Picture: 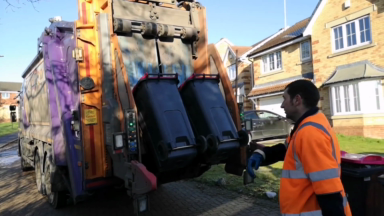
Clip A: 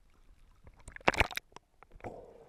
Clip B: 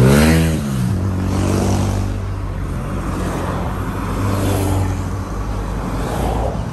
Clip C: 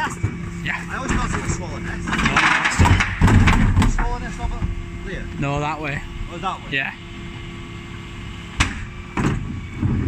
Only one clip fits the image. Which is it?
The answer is C